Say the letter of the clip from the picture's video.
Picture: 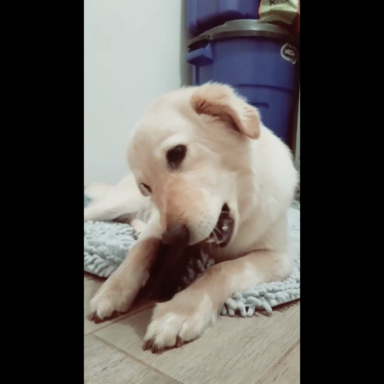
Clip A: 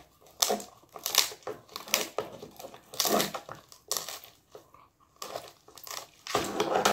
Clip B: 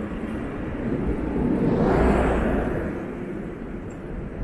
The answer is A